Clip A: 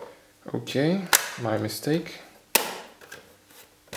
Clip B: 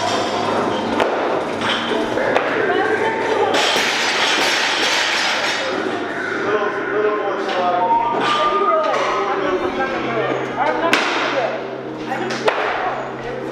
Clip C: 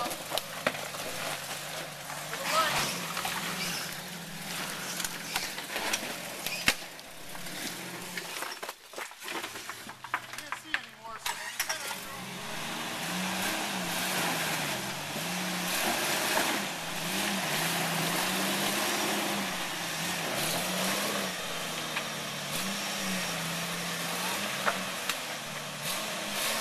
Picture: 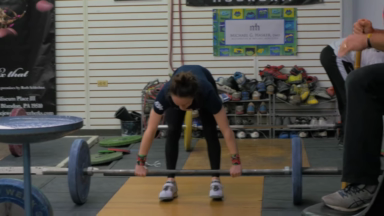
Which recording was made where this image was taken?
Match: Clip B